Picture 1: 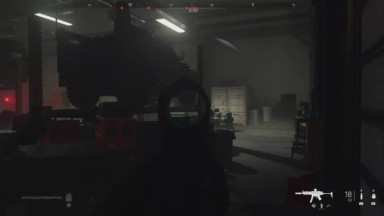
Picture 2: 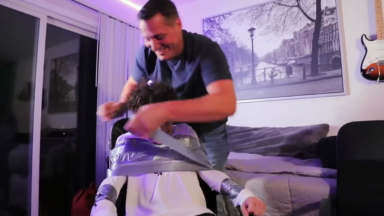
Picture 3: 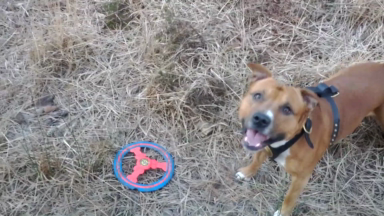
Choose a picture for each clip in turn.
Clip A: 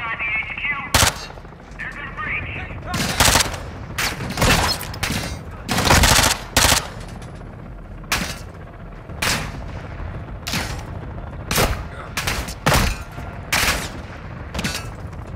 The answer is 1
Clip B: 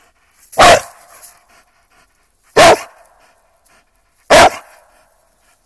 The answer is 3